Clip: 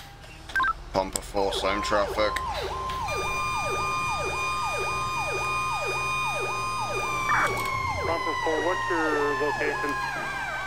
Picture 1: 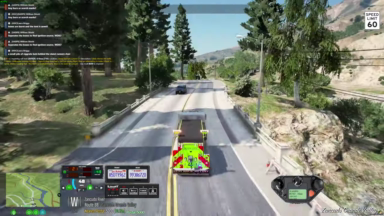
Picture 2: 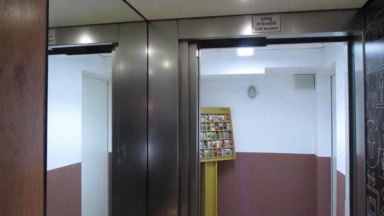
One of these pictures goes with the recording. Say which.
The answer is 1